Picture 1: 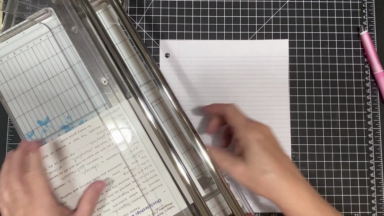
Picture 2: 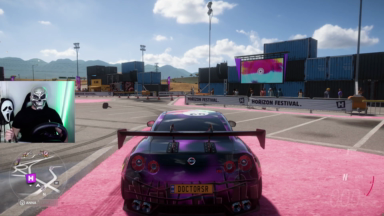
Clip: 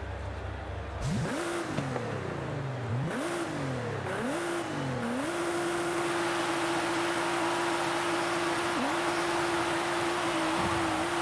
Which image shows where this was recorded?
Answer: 2